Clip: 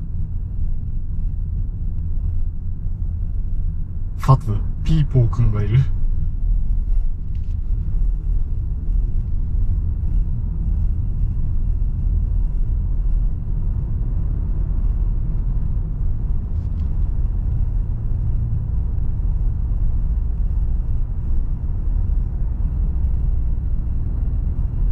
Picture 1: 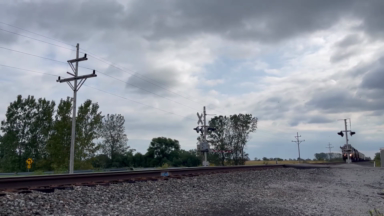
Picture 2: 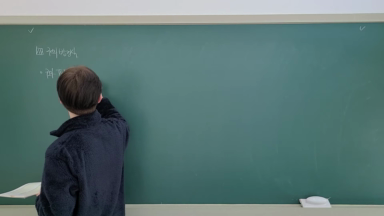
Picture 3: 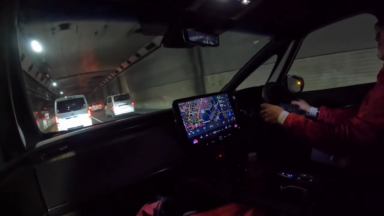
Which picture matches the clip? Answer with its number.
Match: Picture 3